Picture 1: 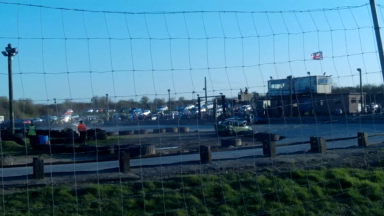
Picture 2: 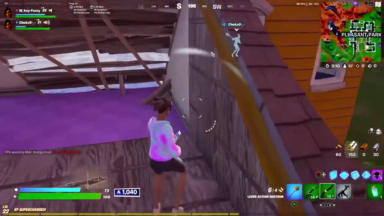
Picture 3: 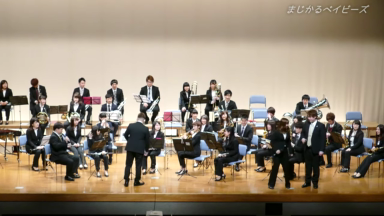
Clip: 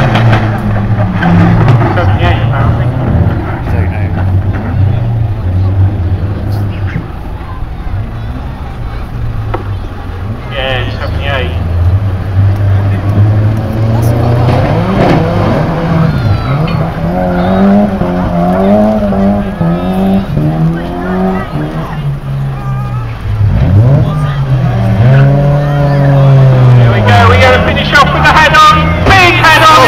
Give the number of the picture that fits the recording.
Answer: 1